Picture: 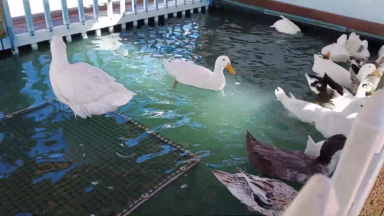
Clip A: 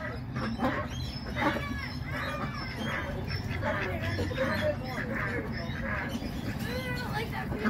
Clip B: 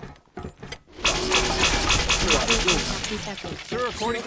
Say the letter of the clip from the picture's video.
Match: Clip A